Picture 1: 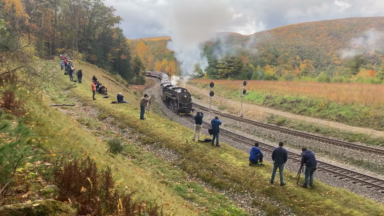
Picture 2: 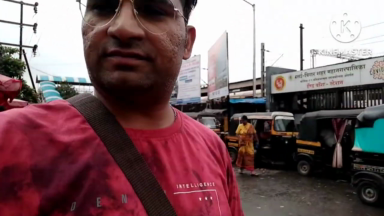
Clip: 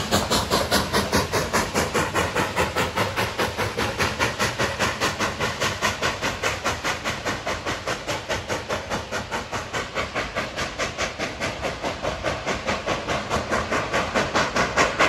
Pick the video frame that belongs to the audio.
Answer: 1